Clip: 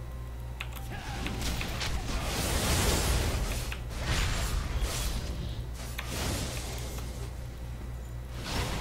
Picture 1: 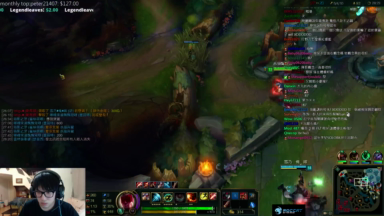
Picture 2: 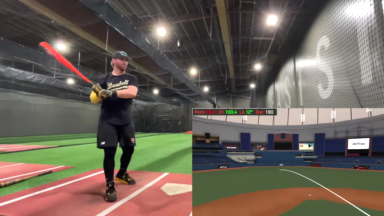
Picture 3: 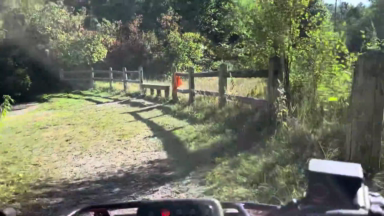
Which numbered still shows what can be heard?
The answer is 1